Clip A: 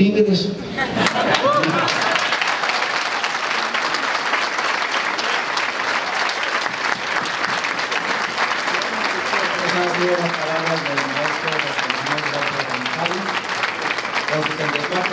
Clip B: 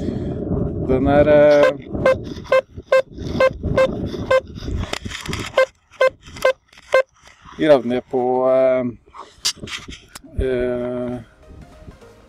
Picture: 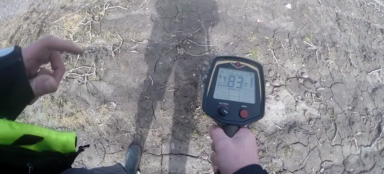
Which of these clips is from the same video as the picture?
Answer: B